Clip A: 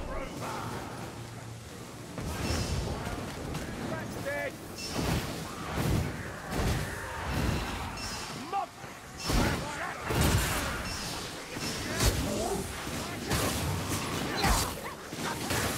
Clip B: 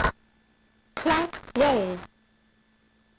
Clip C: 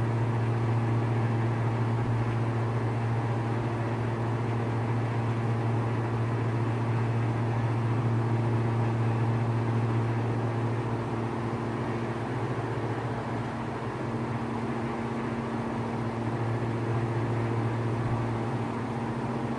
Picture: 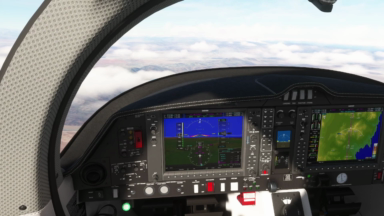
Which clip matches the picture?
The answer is C